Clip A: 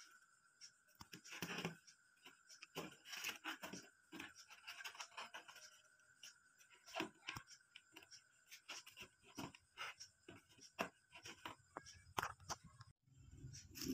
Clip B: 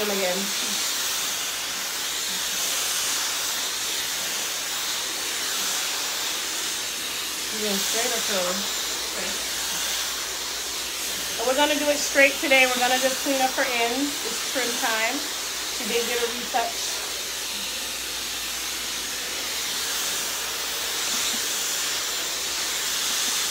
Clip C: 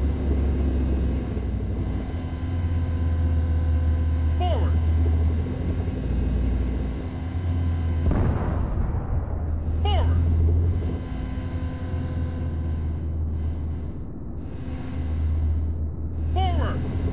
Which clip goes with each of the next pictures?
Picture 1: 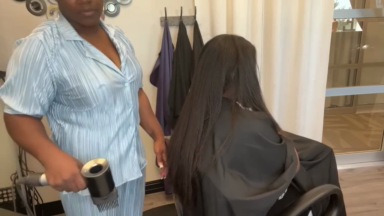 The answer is B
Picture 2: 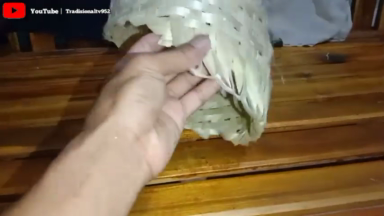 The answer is A